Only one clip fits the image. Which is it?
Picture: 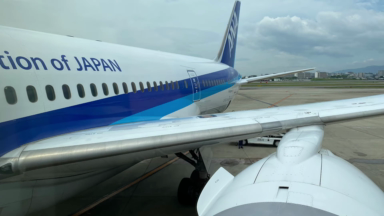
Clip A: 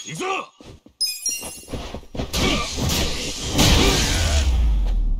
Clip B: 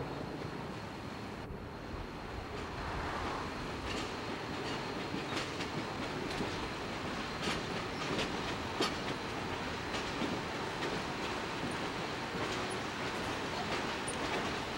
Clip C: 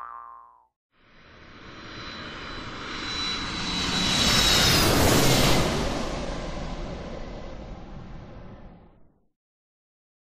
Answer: C